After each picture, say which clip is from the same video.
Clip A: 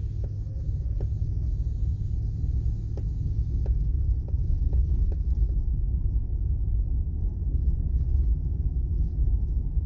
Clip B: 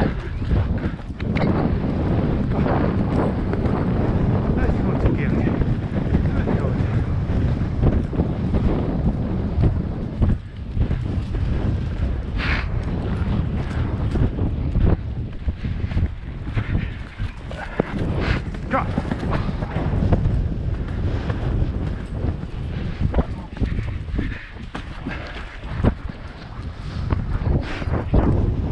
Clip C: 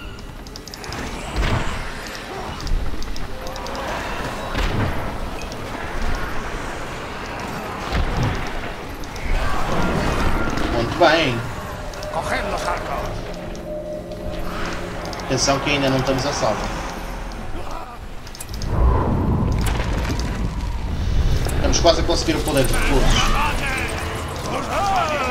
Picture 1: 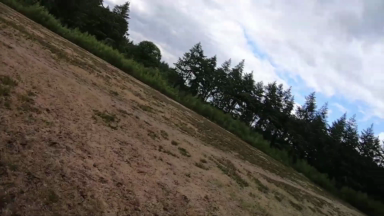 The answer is B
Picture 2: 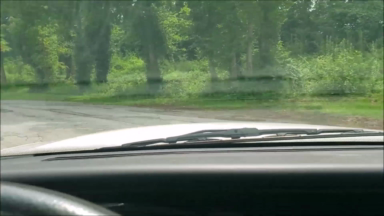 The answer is A